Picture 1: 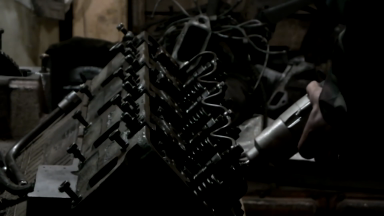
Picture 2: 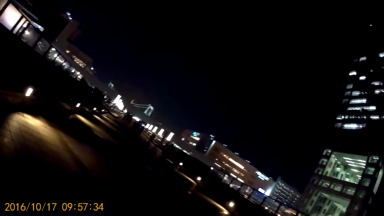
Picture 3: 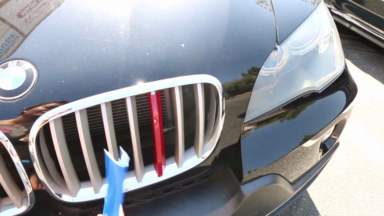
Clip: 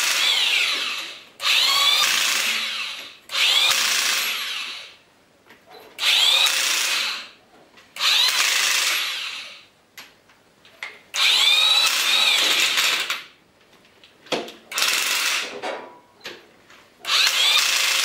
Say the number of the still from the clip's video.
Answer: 1